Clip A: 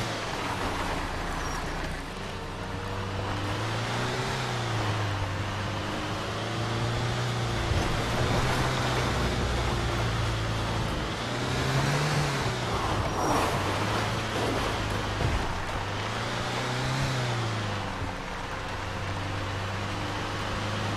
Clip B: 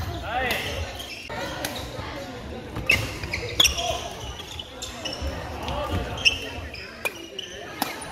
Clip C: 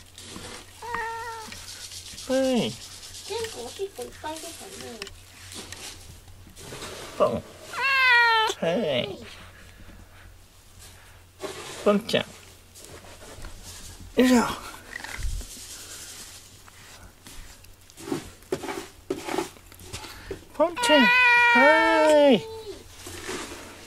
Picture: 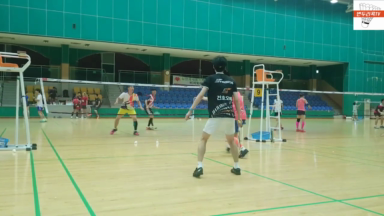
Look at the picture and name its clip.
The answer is B